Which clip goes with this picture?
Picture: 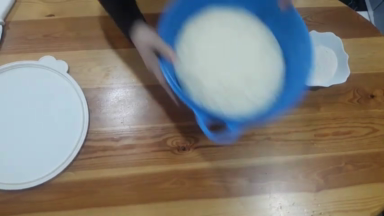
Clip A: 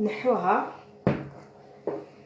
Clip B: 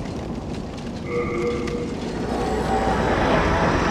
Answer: A